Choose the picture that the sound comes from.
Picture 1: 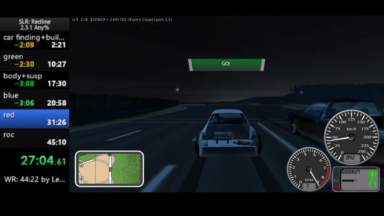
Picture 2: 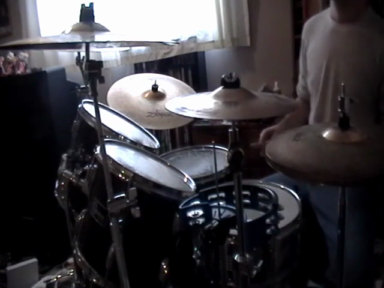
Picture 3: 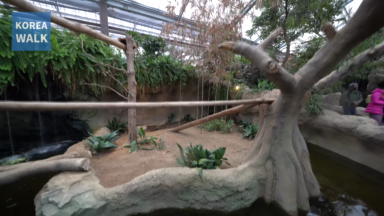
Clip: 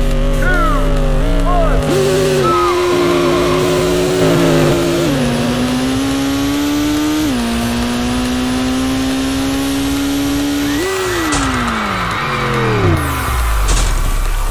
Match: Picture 1